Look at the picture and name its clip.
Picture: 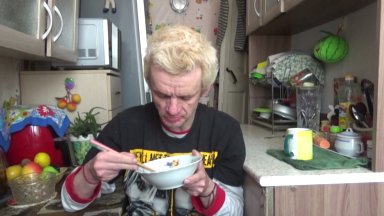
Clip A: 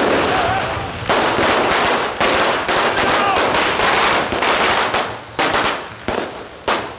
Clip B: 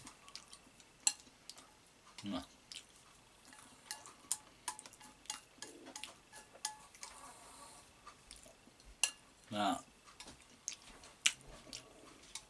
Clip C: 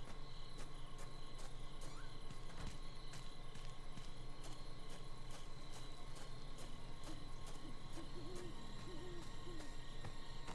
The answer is B